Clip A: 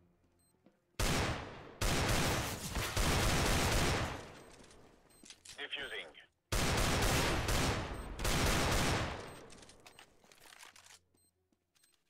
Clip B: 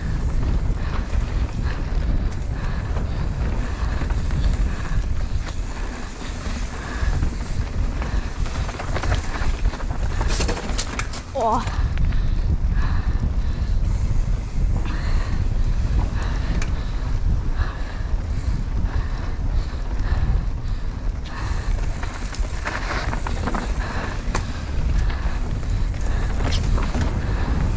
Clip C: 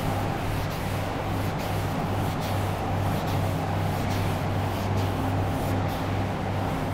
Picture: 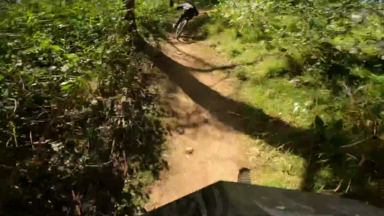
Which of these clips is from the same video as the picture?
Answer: B